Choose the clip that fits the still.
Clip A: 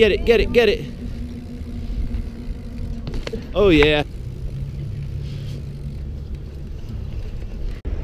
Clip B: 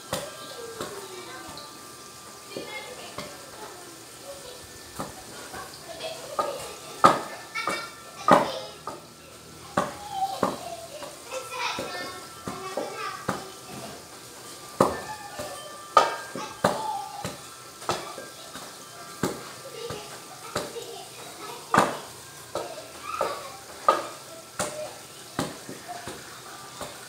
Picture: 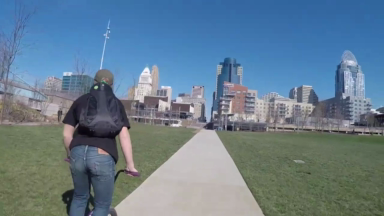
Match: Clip A